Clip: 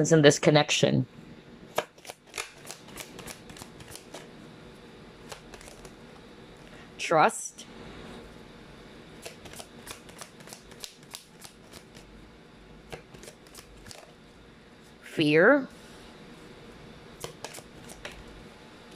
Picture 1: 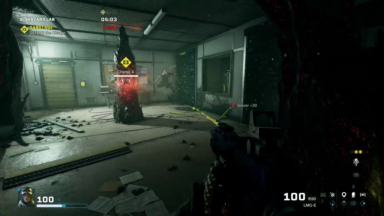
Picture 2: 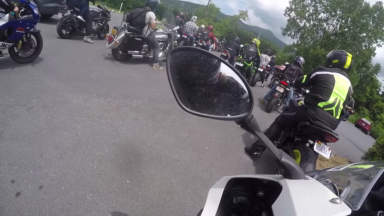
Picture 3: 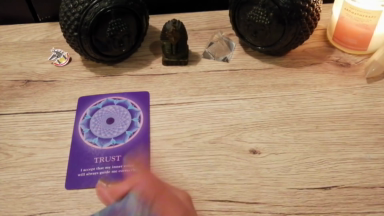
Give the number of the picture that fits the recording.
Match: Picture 3